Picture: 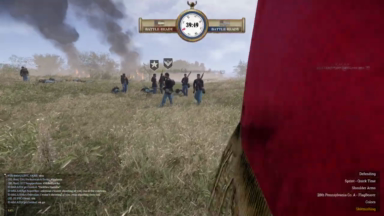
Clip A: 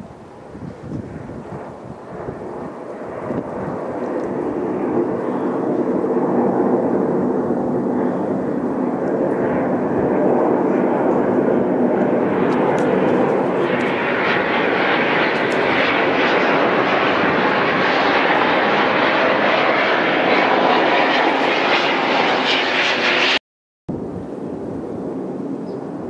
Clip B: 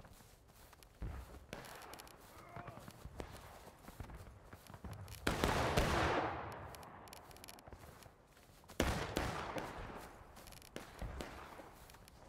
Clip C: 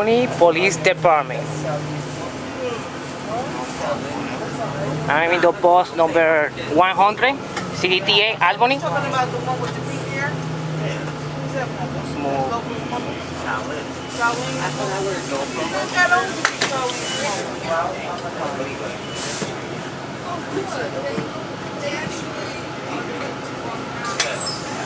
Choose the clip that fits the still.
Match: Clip B